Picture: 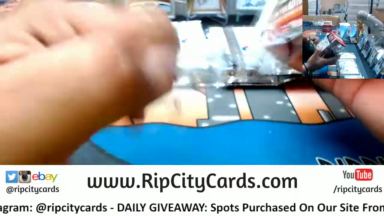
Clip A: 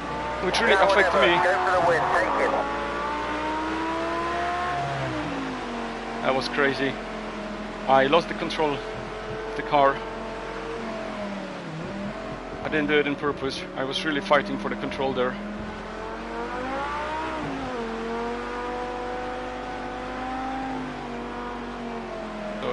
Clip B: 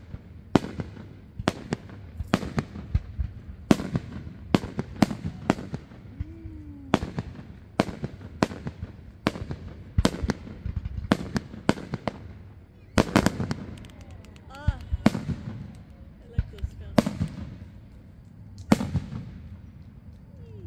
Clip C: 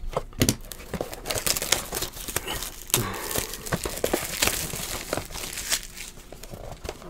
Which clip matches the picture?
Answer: C